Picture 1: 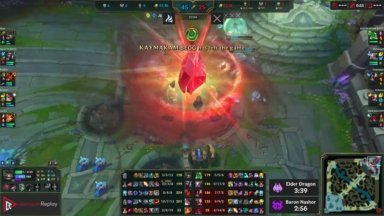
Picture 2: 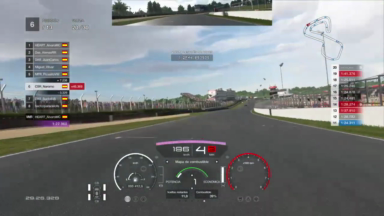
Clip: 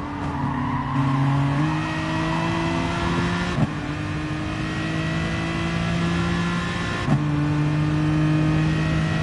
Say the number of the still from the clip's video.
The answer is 2